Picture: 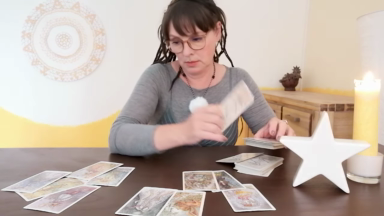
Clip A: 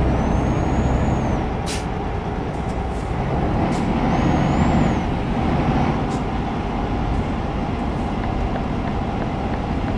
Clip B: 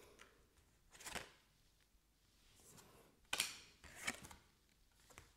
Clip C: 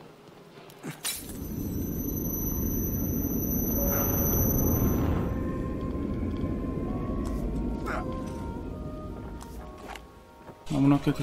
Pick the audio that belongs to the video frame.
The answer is B